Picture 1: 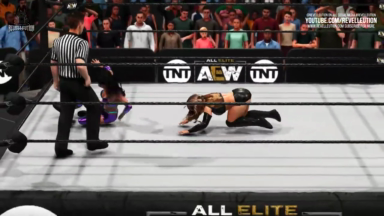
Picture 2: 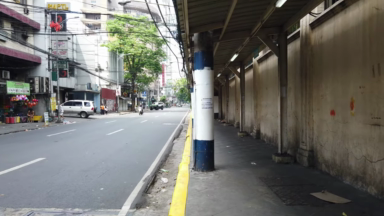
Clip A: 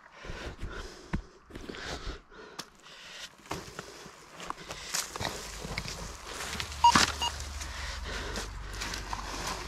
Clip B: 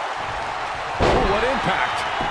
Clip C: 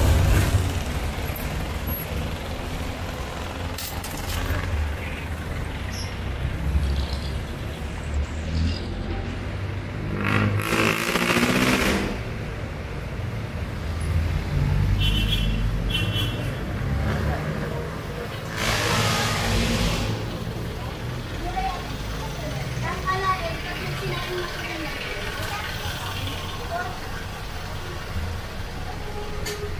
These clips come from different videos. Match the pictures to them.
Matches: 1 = B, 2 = C